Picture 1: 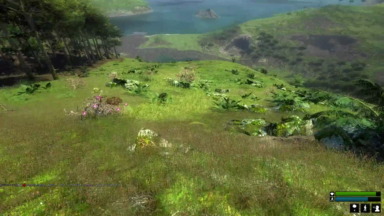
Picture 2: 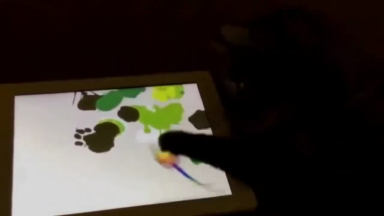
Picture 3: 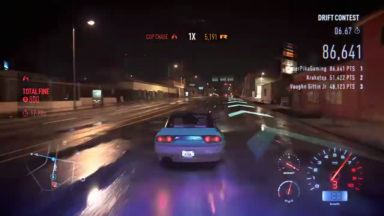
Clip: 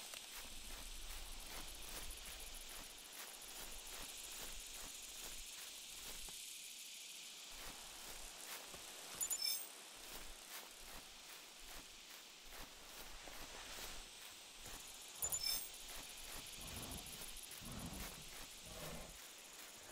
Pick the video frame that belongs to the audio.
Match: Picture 1